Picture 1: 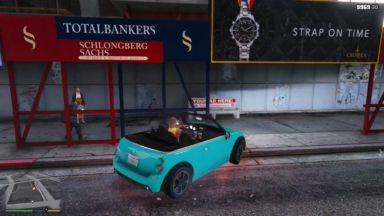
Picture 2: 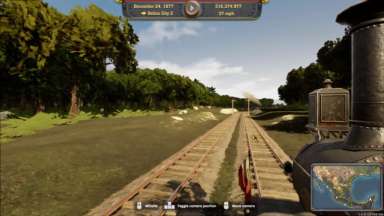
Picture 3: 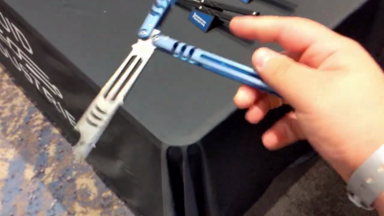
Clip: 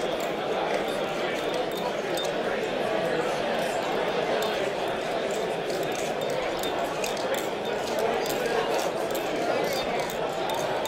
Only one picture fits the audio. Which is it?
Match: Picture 3